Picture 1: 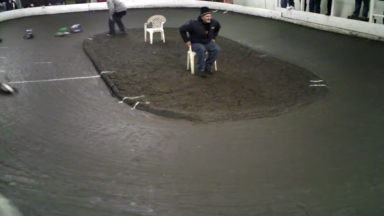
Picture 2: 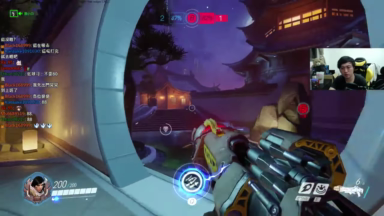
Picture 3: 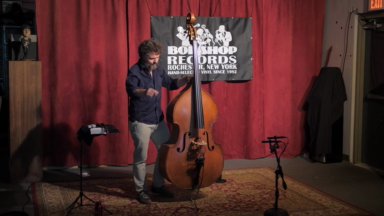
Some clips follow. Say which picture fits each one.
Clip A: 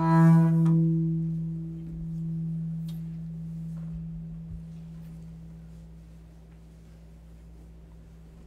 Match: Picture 3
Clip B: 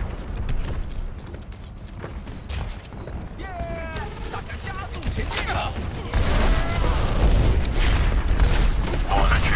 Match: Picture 2